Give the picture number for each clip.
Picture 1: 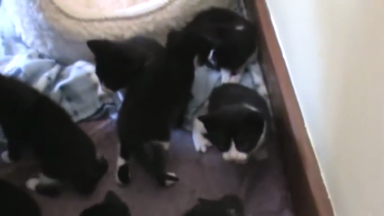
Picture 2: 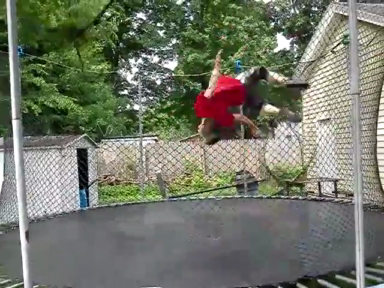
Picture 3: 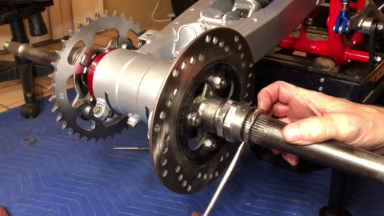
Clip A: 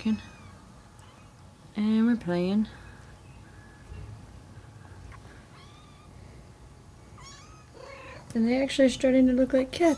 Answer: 1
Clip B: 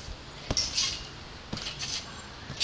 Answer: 2